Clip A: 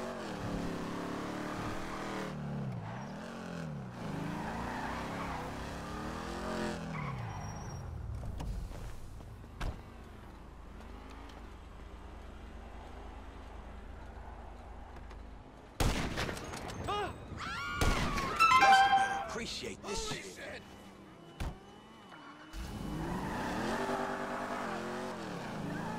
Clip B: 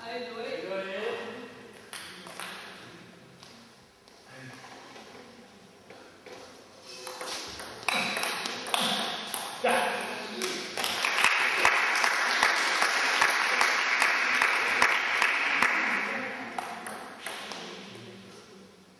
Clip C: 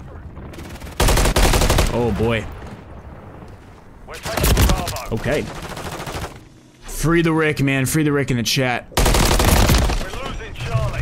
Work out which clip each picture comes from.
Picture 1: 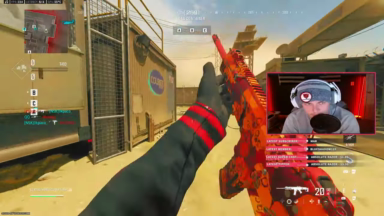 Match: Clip C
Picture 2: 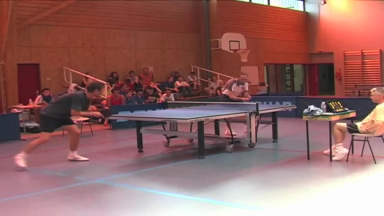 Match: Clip B